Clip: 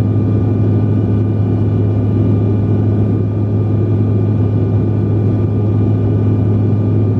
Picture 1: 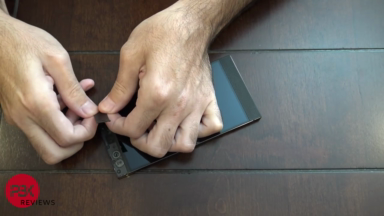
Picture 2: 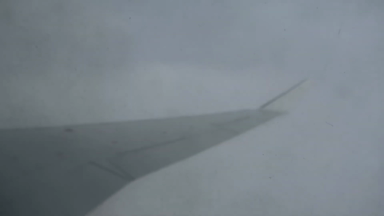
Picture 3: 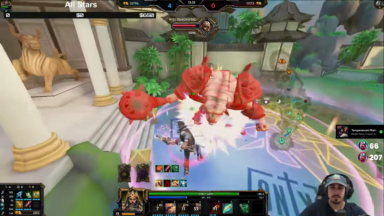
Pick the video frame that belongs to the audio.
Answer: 2